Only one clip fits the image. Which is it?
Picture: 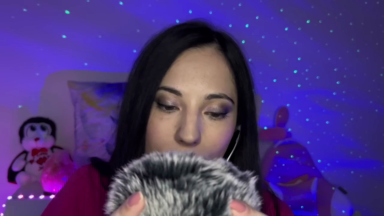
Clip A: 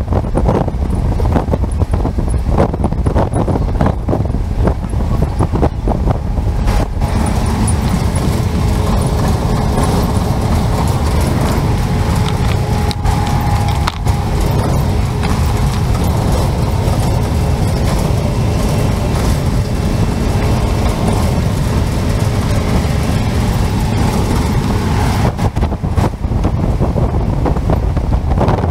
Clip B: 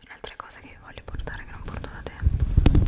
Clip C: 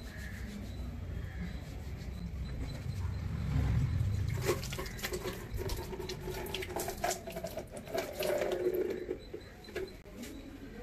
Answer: B